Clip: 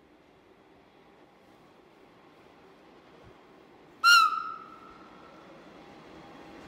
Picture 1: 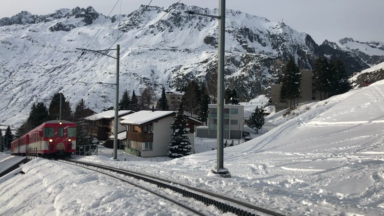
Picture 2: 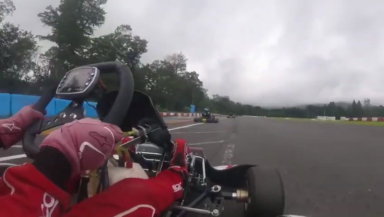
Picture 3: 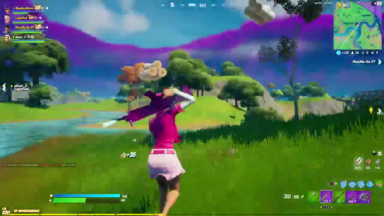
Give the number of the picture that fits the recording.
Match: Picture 1